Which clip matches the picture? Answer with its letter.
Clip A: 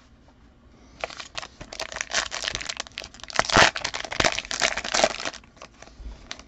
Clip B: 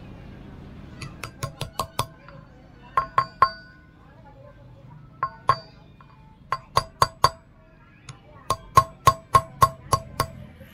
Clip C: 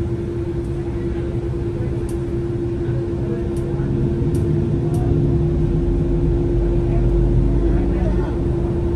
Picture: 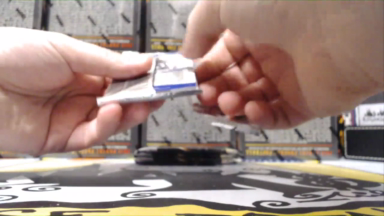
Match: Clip A